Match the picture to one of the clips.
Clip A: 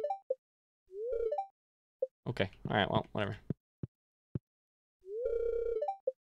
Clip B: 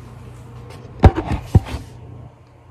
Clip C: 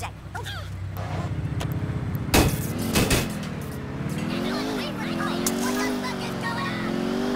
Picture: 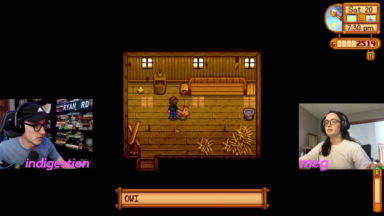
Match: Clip A